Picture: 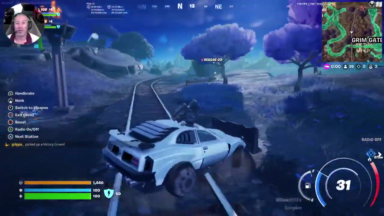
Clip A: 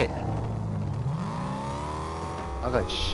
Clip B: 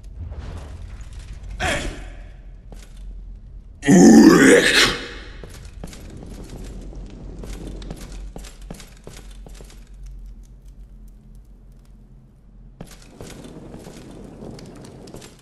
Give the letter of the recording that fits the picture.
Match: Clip A